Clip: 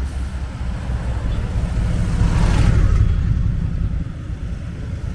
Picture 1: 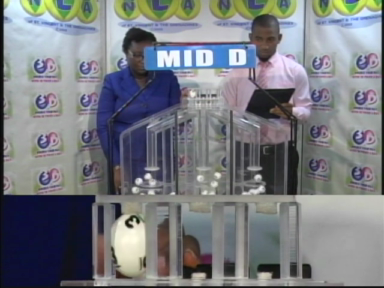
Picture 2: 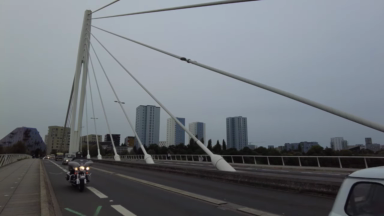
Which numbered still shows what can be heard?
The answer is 2